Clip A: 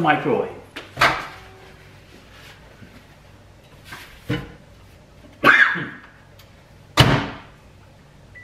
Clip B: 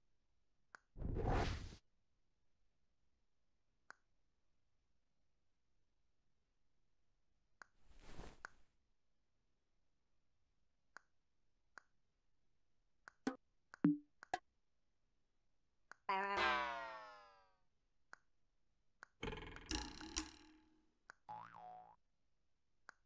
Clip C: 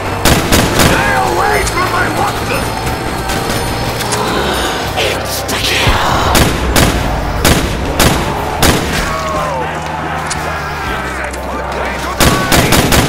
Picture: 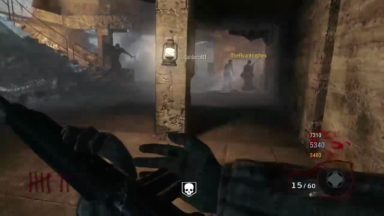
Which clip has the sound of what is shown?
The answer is C